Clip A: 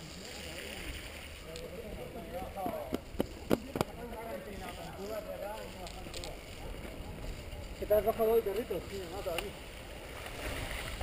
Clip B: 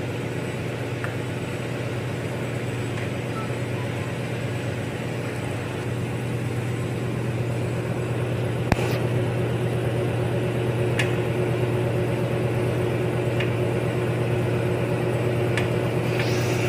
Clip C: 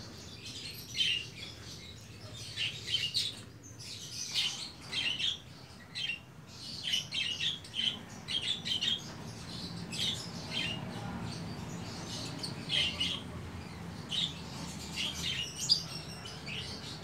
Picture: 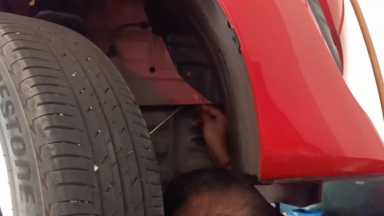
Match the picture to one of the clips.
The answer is B